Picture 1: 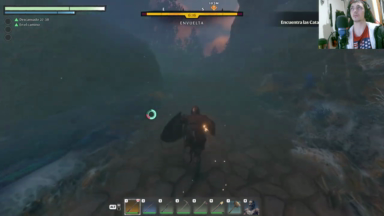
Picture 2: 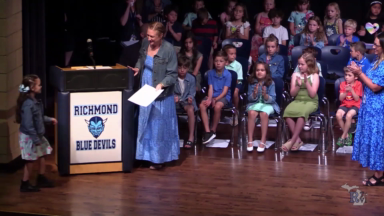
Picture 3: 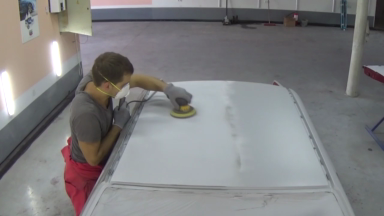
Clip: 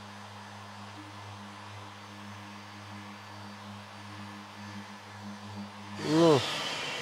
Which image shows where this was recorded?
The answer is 3